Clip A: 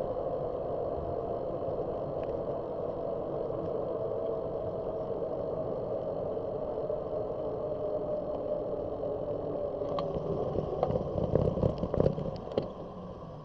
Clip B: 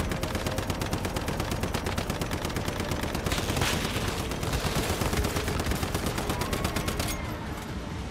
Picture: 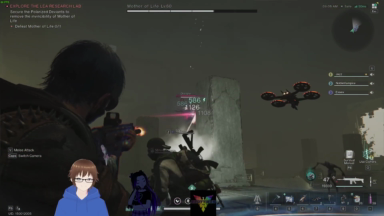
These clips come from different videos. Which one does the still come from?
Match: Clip B